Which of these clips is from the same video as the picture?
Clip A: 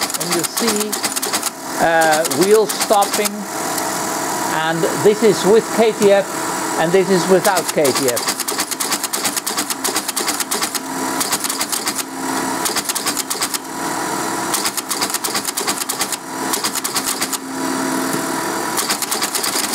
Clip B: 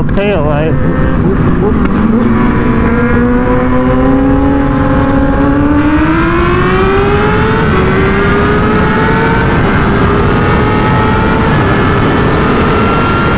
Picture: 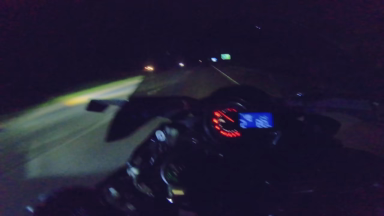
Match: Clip B